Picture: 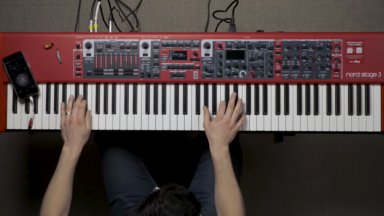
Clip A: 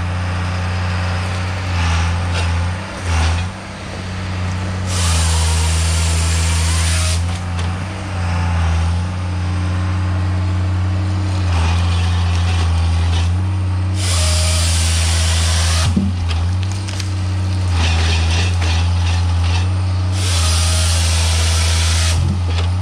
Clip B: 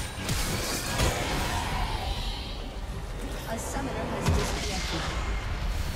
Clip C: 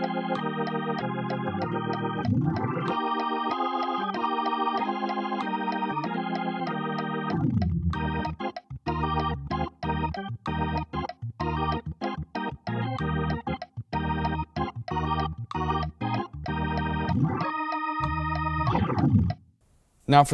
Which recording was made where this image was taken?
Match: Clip C